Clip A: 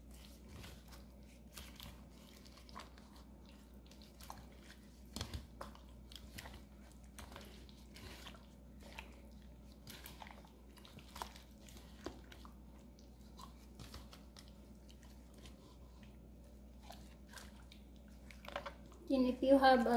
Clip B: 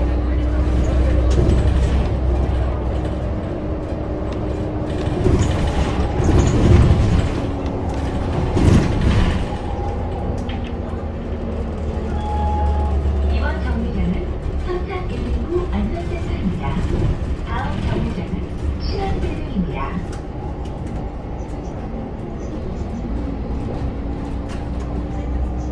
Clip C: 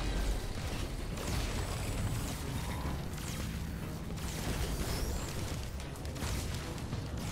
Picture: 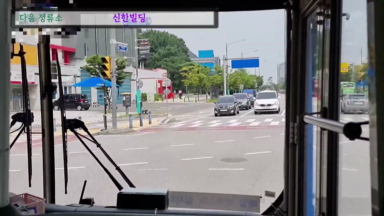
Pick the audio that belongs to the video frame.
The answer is B